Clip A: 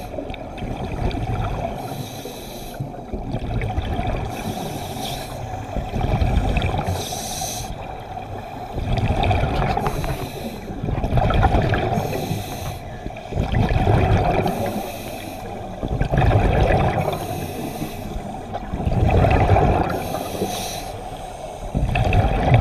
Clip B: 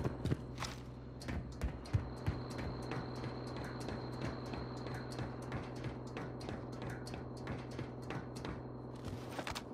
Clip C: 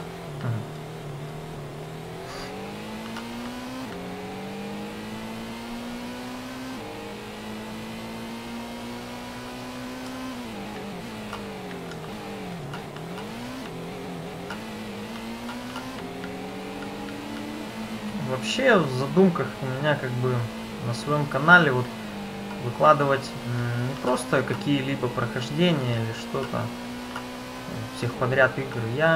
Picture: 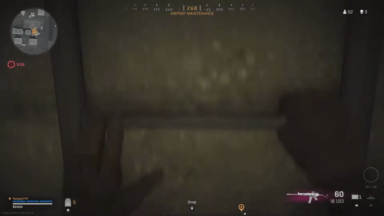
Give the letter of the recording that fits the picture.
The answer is B